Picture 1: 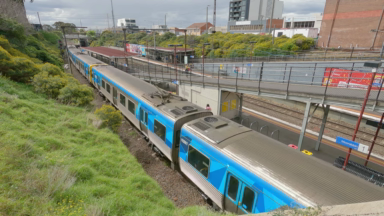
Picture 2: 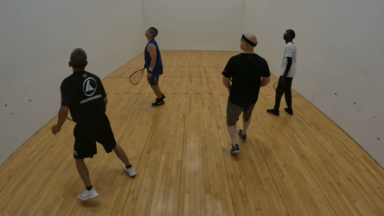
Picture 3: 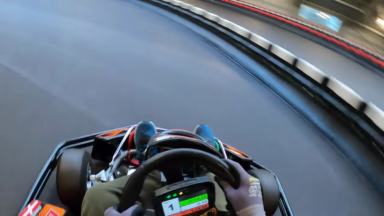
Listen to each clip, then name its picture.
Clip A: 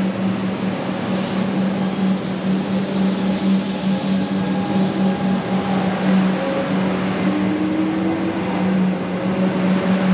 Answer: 1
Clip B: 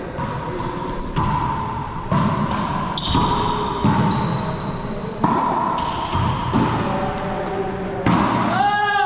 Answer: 2